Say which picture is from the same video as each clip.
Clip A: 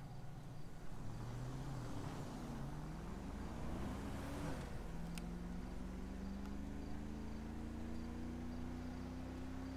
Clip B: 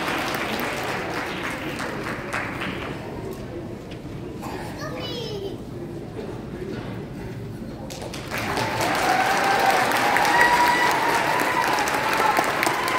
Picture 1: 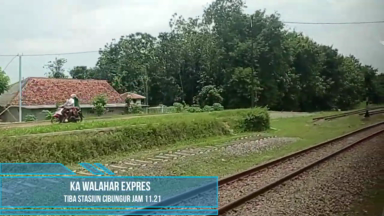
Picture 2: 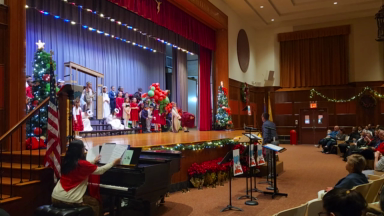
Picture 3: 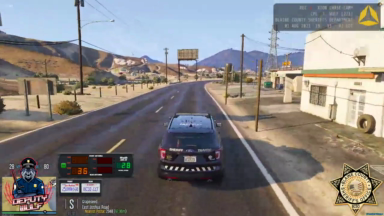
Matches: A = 3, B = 2